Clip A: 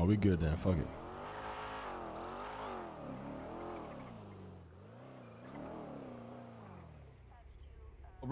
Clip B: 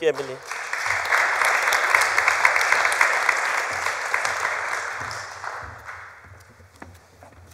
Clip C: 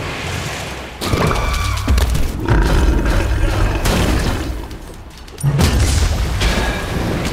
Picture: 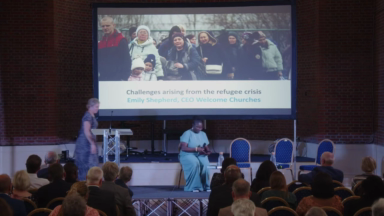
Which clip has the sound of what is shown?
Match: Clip B